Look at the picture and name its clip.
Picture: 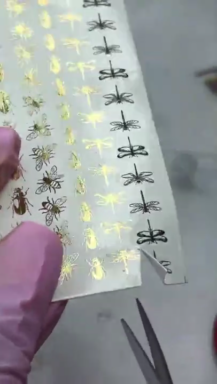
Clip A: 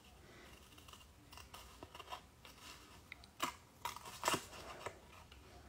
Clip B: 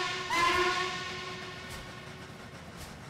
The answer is A